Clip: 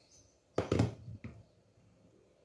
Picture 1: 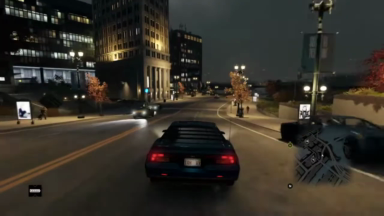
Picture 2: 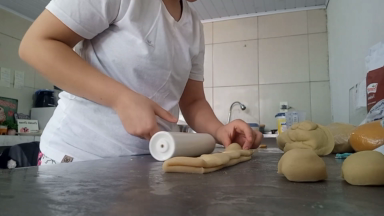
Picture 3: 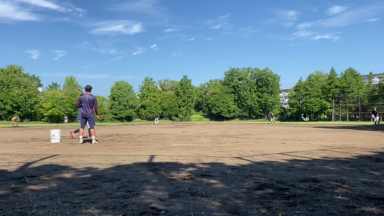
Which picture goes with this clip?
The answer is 2